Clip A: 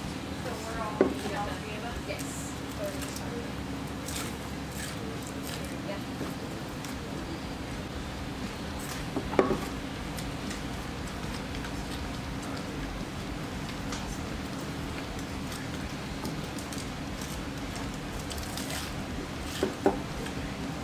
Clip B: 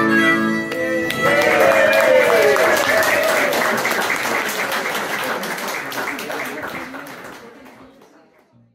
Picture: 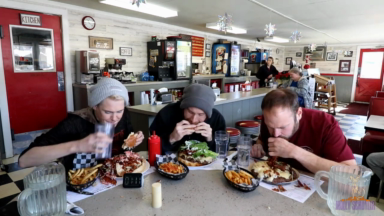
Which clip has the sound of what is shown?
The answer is A